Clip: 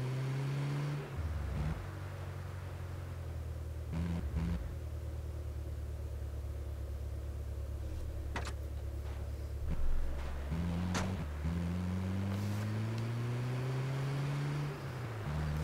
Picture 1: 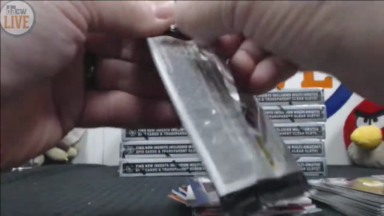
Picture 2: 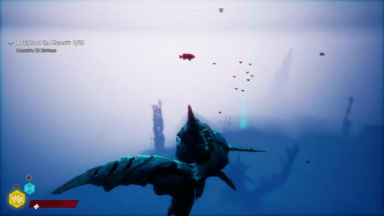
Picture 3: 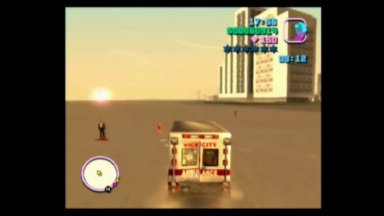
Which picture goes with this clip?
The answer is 3